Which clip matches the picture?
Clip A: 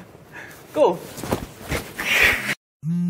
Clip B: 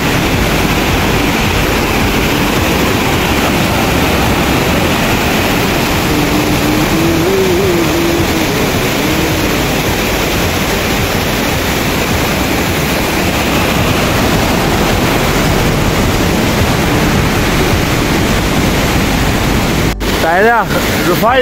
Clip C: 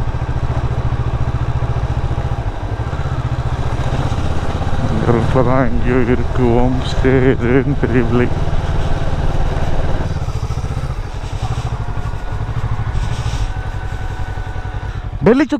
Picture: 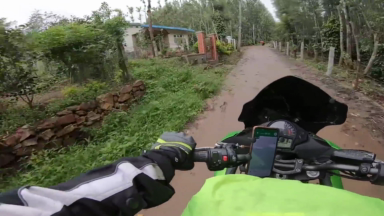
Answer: C